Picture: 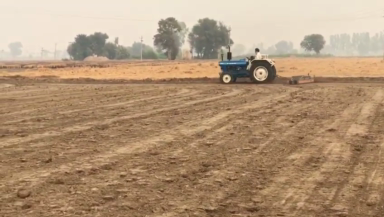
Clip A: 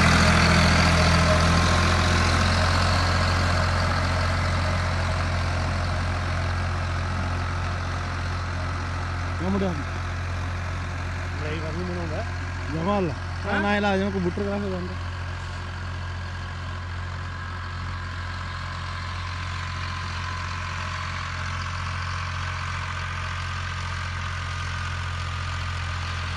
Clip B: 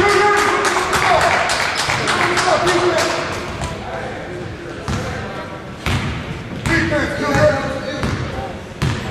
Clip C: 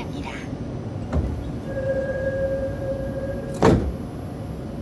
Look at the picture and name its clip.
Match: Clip A